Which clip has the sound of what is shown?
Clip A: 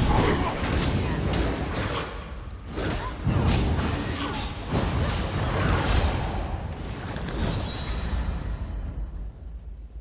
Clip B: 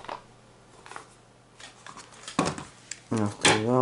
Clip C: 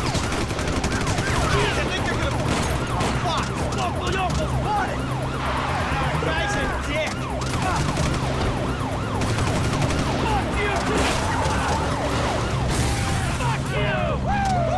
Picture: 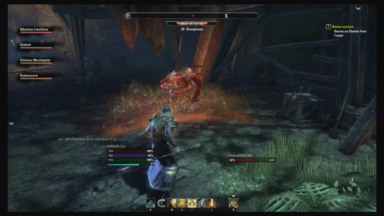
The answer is A